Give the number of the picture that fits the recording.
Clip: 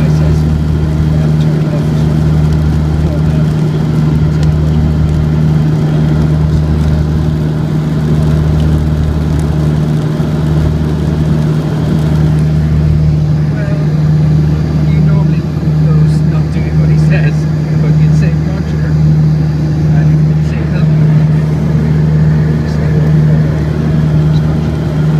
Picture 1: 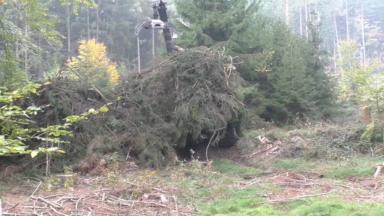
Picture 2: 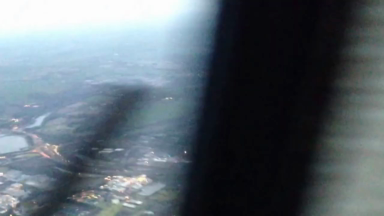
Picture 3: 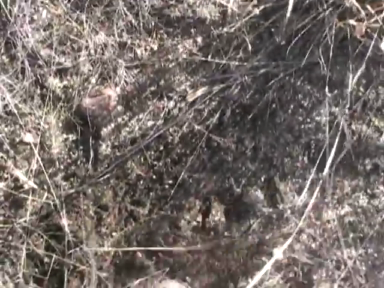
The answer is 2